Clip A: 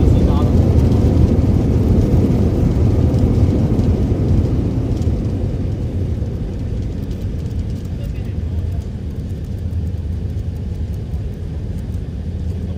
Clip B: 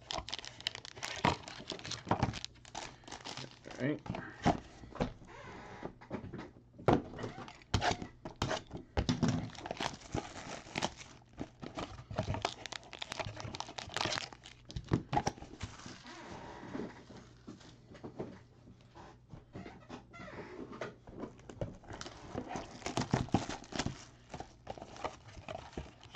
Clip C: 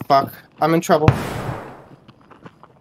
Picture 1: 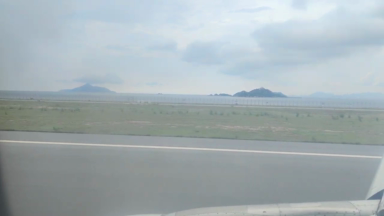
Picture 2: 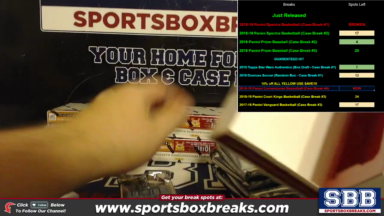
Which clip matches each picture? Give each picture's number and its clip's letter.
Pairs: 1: A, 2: B